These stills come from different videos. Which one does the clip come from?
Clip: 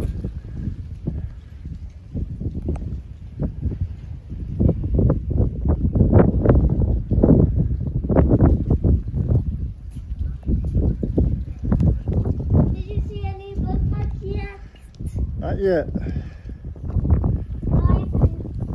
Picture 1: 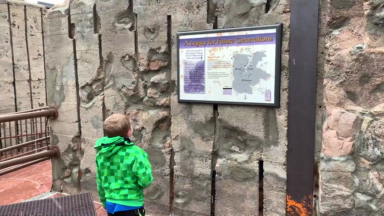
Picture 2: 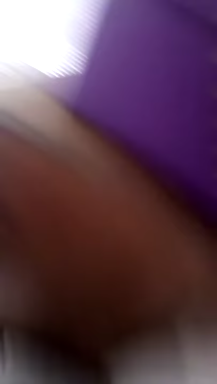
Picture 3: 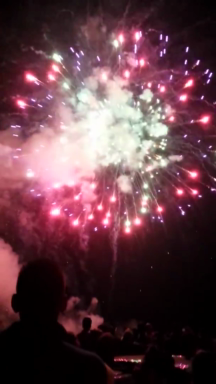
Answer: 1